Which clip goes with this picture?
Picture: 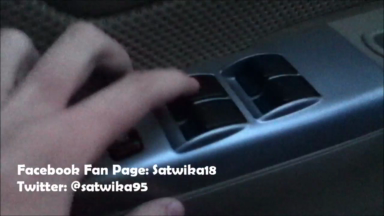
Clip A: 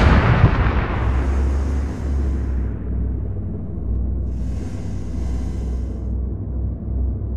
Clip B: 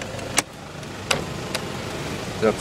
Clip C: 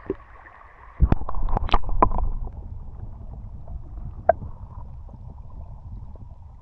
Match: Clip B